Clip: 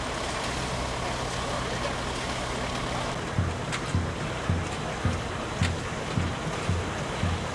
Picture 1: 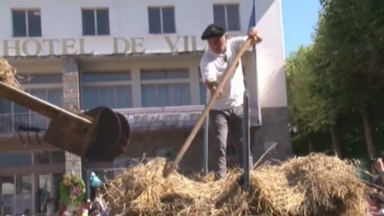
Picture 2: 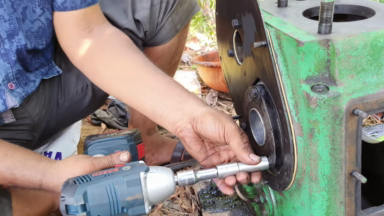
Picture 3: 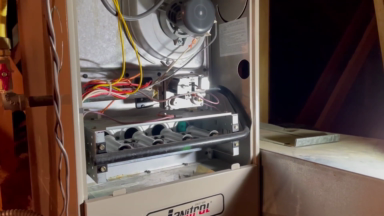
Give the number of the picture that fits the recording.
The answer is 1